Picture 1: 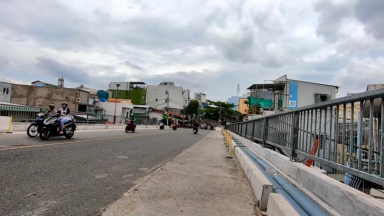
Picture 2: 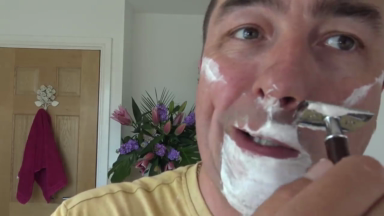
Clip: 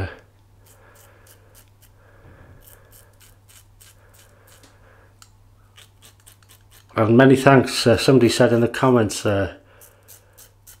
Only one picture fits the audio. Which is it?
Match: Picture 2